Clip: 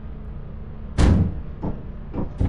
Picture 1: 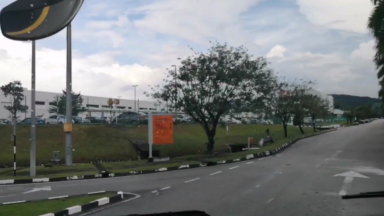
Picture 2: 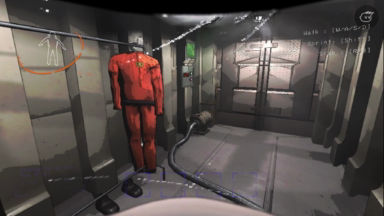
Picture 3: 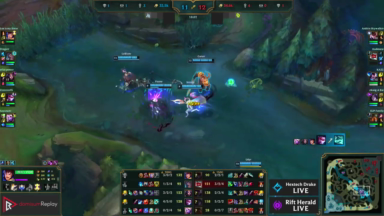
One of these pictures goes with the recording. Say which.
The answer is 2